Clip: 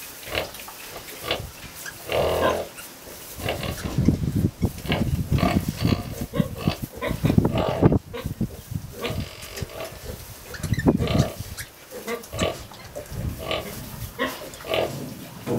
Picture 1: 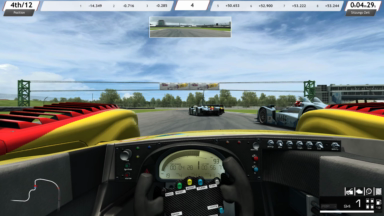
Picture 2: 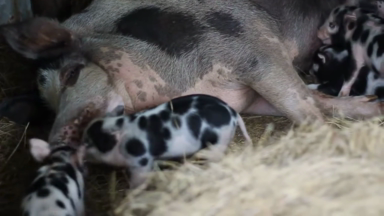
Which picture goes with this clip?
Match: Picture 2